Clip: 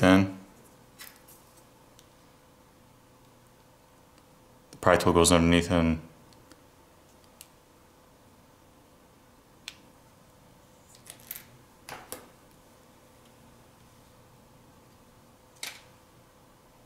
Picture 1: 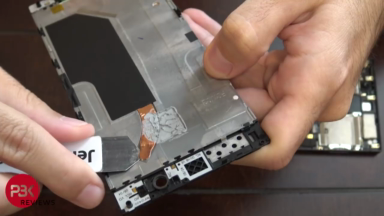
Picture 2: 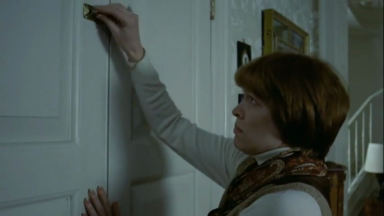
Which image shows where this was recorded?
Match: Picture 1